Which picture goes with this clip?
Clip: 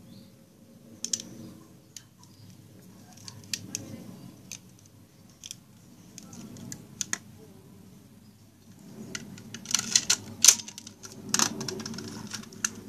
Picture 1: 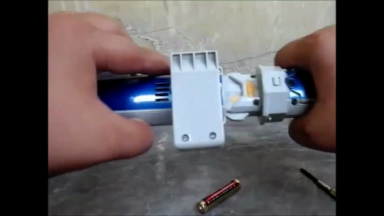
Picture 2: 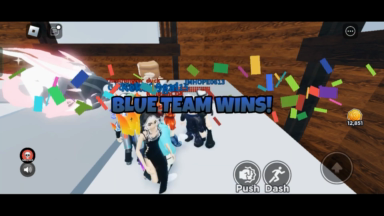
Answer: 1